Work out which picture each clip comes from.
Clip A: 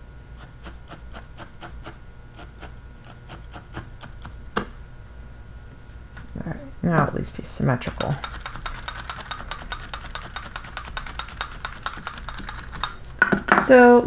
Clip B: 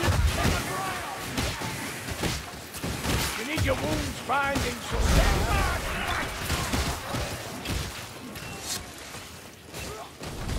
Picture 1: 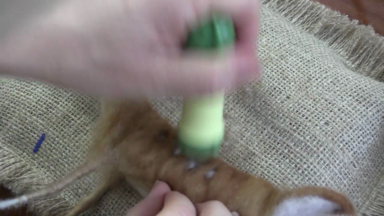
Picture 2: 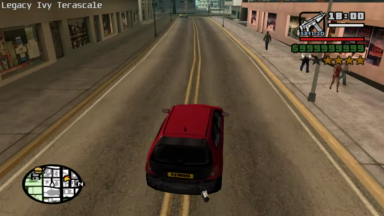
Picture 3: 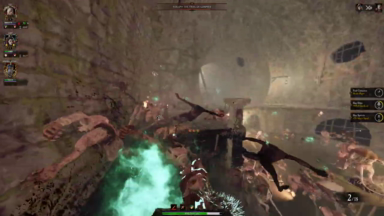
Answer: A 1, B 3